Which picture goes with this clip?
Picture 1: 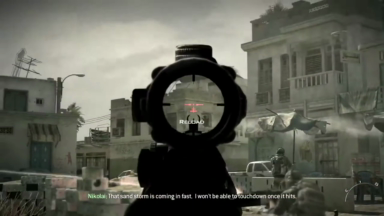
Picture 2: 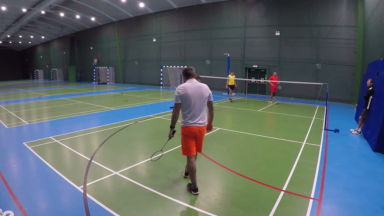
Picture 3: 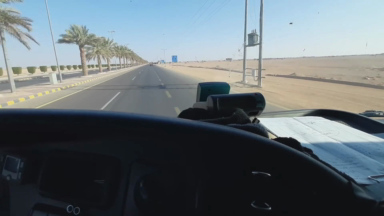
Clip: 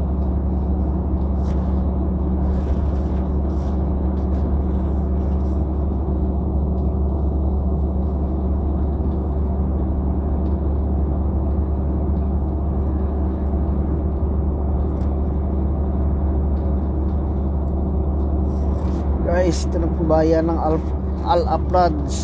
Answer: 3